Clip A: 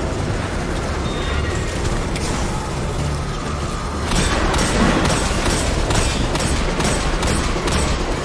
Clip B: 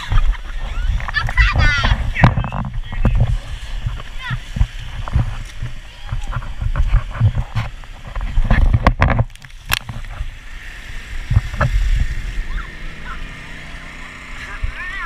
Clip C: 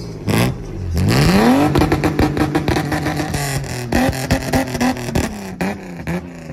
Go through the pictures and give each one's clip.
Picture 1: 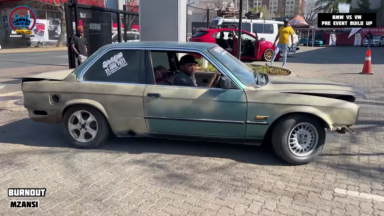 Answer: C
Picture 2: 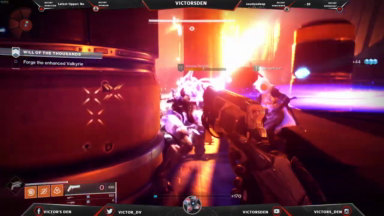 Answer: A